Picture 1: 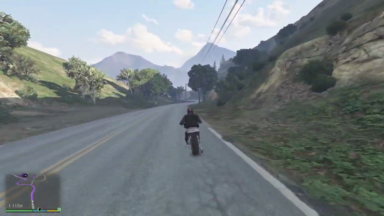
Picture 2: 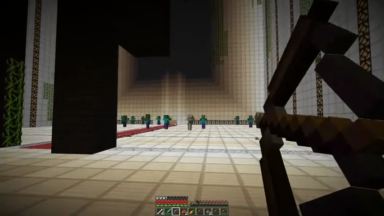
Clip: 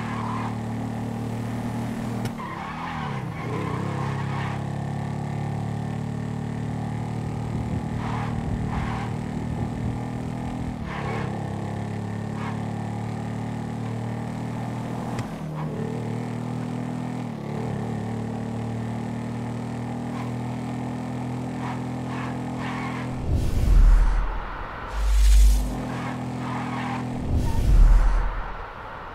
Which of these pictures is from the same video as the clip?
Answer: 1